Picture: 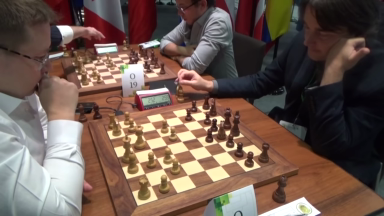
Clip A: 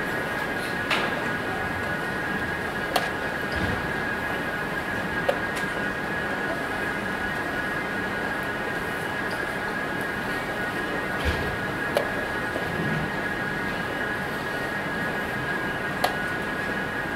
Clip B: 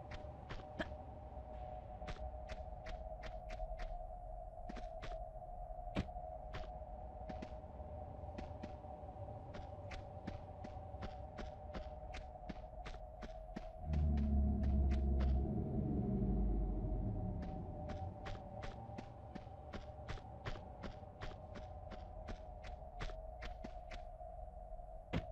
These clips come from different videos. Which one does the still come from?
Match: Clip A